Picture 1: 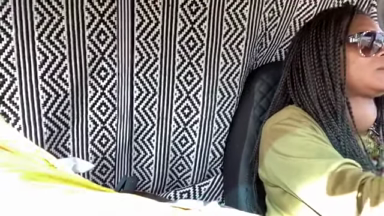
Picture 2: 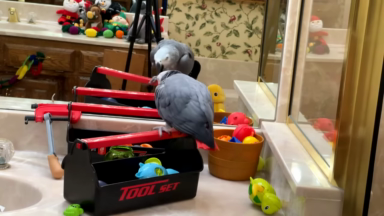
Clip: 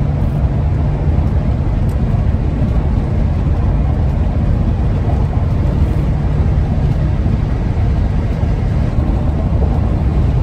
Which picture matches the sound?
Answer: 1